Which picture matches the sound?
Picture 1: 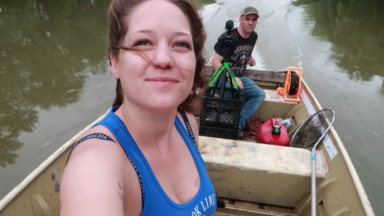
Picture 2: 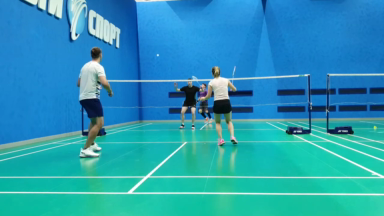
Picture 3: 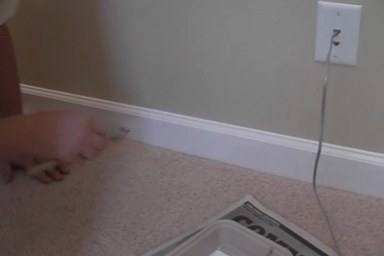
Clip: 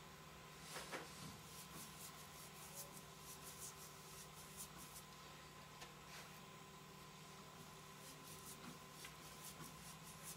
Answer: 3